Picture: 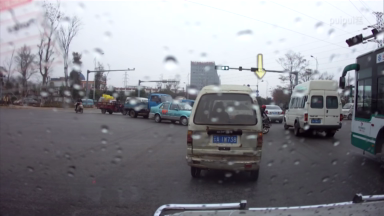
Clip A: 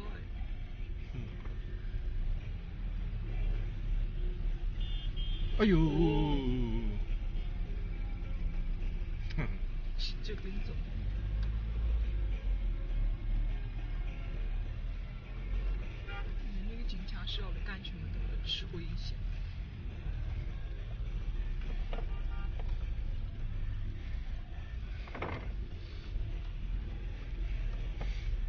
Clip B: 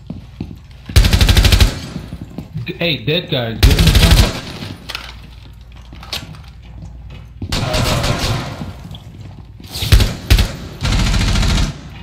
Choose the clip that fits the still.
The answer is A